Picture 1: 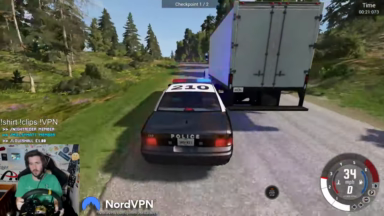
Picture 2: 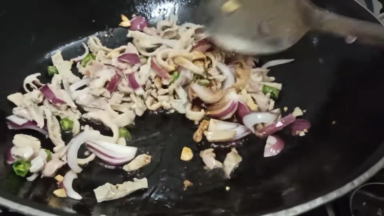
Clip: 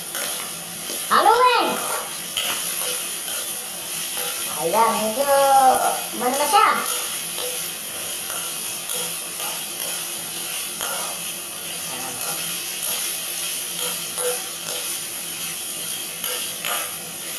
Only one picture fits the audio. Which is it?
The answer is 2